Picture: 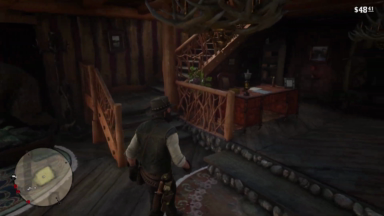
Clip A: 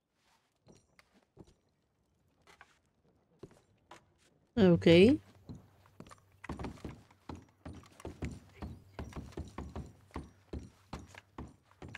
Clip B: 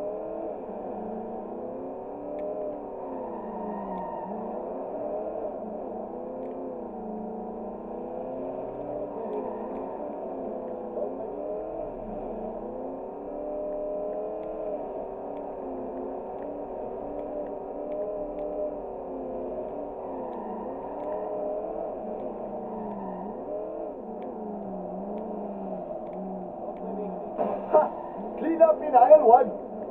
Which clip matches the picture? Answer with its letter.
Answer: A